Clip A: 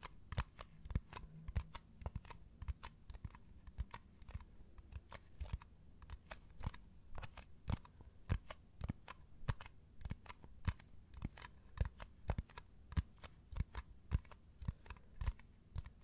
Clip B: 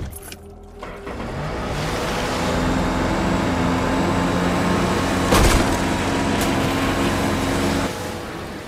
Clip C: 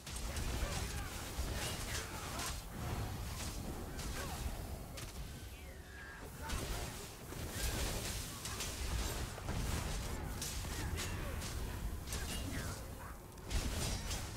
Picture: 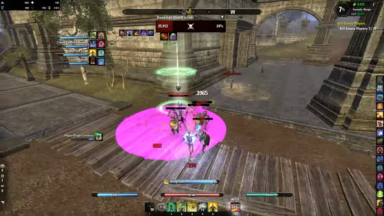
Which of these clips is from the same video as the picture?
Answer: C